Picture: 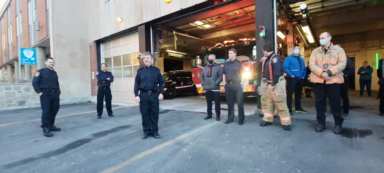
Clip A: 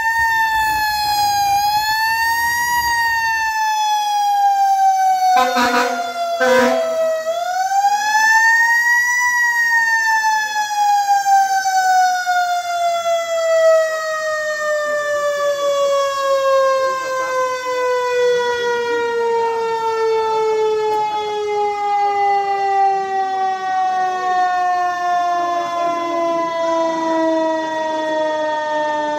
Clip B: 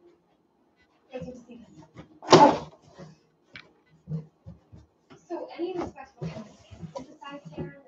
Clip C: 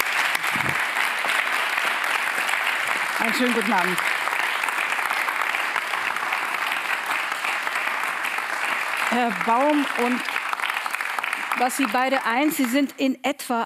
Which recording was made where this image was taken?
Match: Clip A